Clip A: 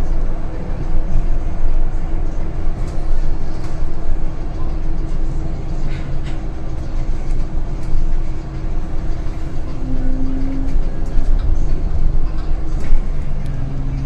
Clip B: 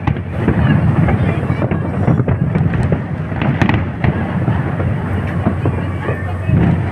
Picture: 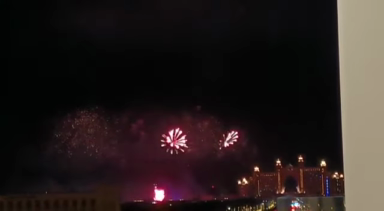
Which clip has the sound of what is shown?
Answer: B